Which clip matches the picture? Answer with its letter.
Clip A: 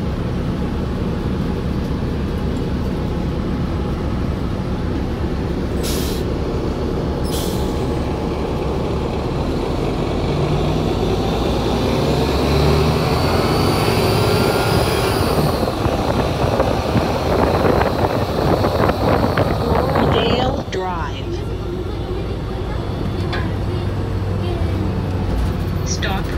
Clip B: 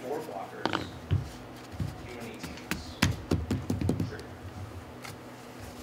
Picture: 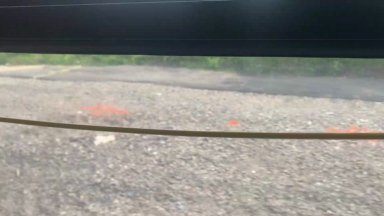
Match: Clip A